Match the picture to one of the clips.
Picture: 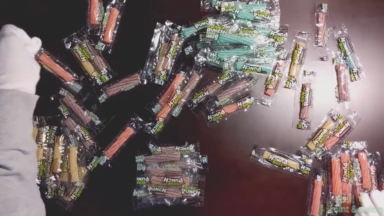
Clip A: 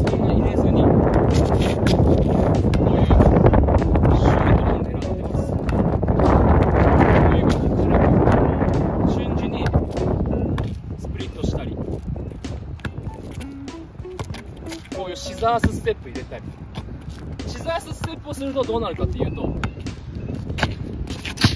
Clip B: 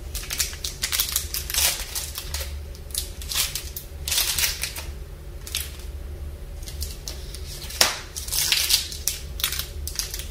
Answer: B